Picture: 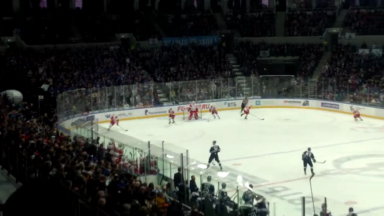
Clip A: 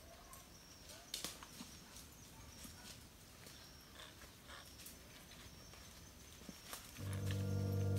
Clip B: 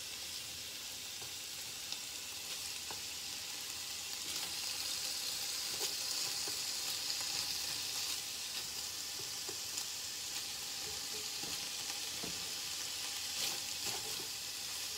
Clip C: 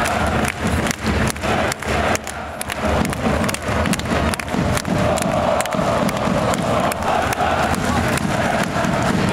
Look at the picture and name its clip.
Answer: C